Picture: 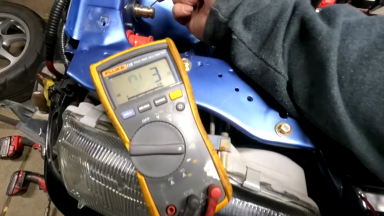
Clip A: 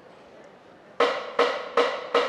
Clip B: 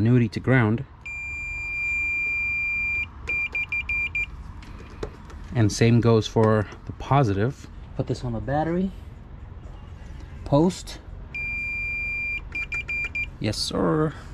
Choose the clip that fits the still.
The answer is B